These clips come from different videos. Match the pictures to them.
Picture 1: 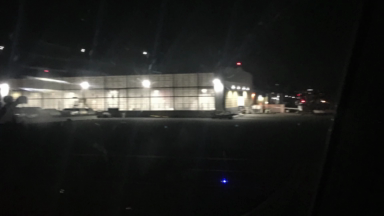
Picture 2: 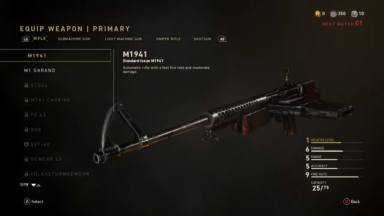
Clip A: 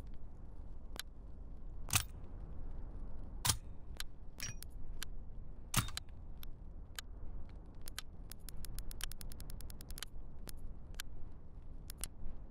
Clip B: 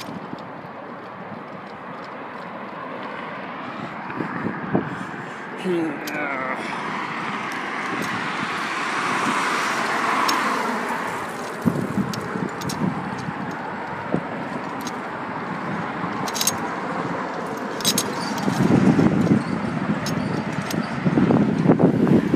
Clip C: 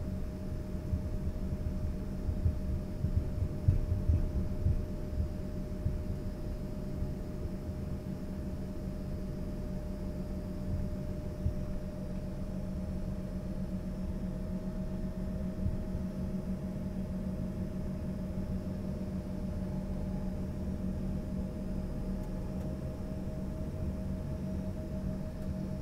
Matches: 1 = C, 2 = A